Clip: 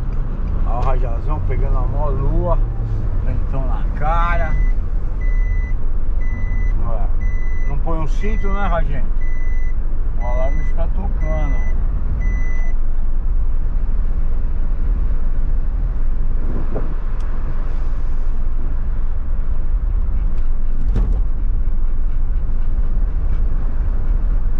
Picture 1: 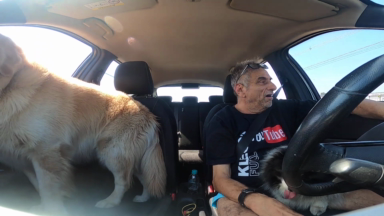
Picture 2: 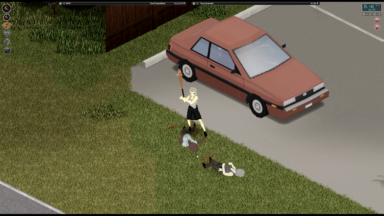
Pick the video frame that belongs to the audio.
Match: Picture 1